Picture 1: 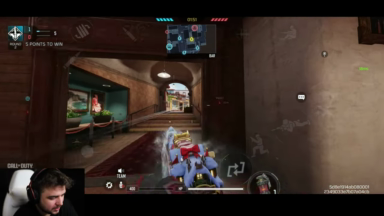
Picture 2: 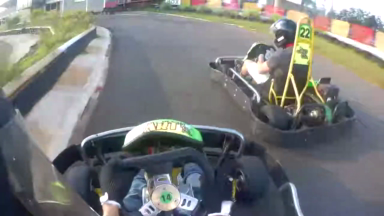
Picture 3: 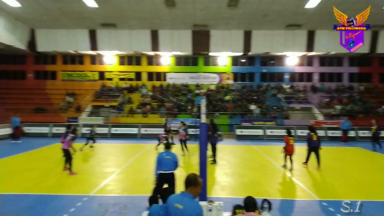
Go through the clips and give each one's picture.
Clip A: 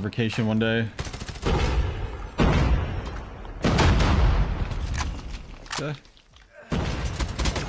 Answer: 1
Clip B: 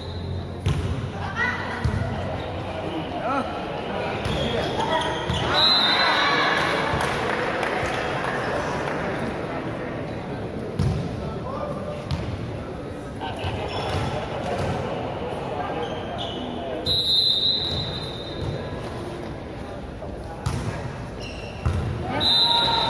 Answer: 3